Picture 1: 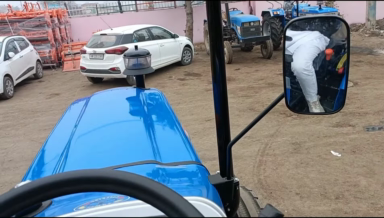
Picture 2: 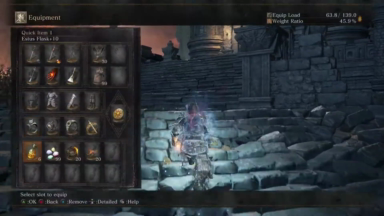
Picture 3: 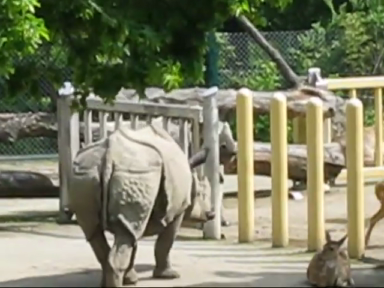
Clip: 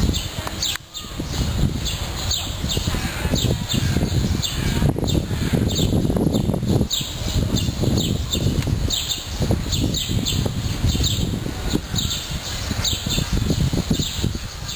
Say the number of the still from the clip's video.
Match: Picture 3